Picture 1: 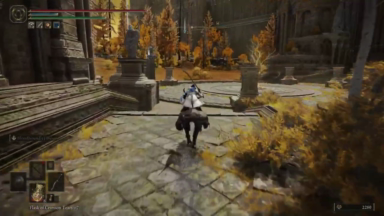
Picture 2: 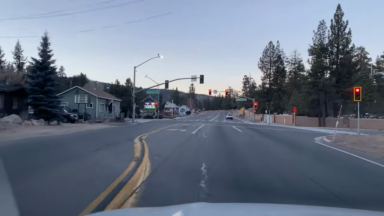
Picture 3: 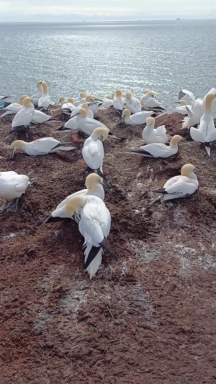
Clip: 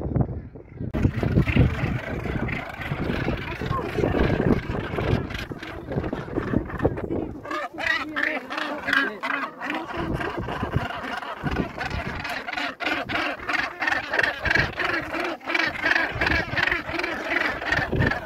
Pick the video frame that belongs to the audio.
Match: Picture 3